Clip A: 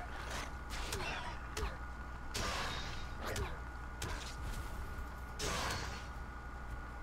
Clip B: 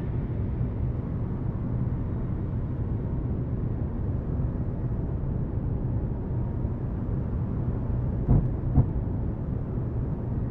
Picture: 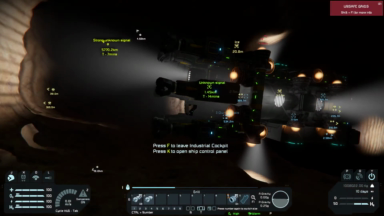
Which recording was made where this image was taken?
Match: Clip B